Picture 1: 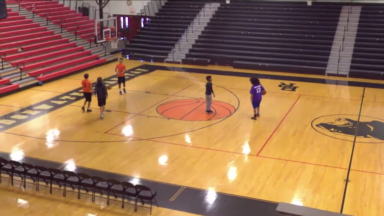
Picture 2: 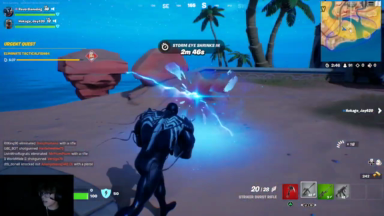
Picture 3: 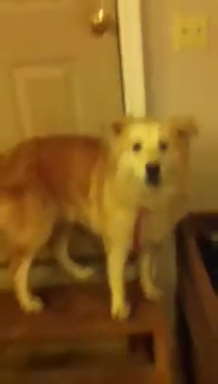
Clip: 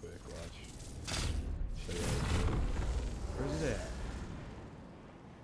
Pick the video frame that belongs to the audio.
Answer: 2